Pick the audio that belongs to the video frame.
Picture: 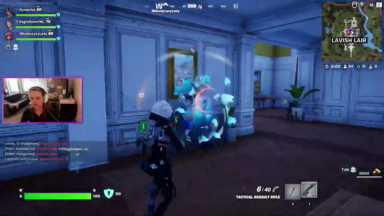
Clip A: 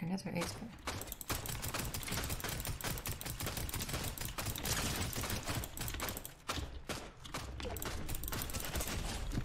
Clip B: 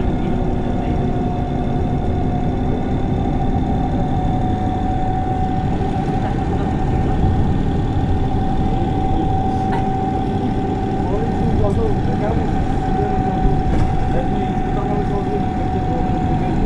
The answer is A